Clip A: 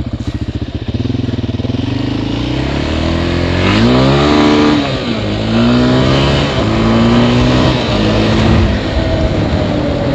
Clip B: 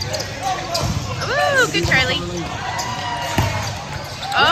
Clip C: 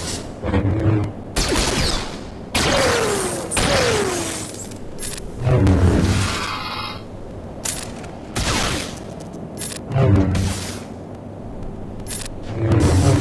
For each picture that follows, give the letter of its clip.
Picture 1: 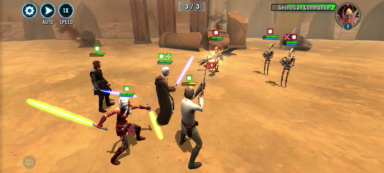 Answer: C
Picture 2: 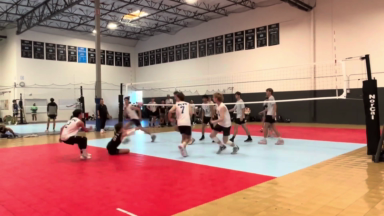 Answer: B